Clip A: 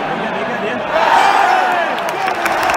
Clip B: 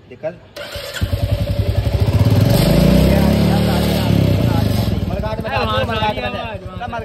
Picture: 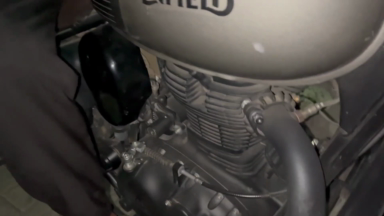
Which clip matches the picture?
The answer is B